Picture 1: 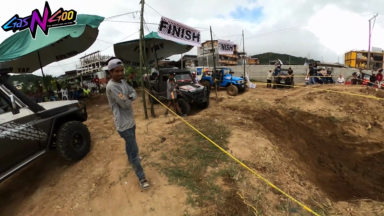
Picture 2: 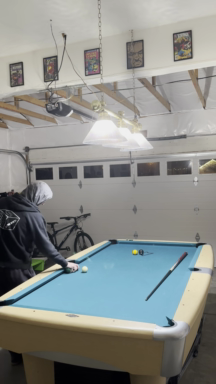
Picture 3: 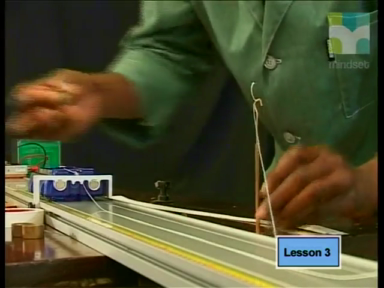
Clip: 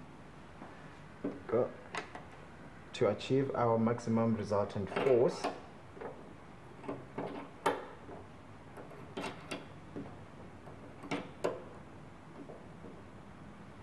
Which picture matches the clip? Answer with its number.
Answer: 3